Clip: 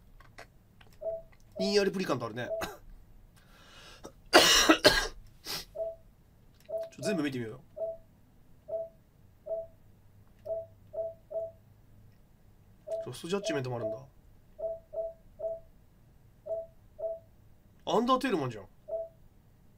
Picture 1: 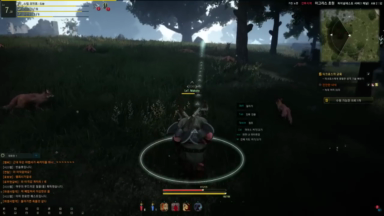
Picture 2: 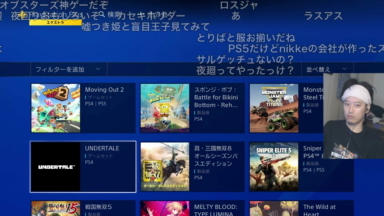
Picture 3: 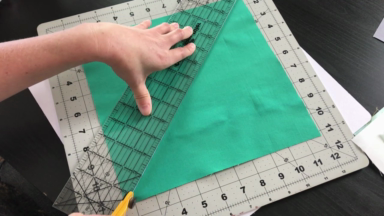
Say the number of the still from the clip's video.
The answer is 2